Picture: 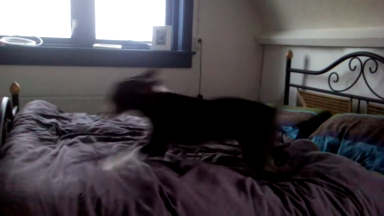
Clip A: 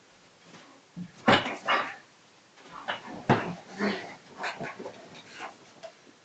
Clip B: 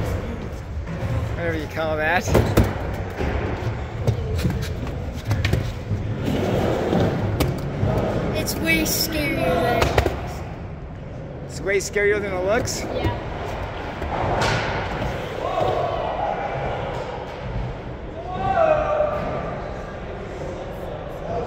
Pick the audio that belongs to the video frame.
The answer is A